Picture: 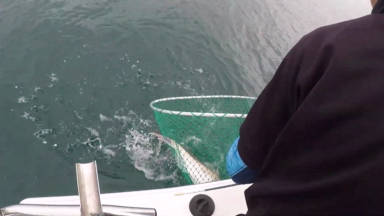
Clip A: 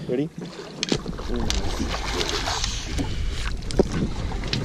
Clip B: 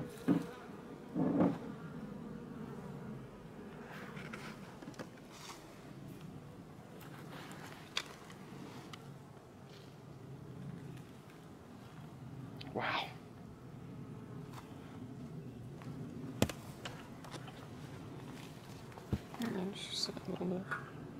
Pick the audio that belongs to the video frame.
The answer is A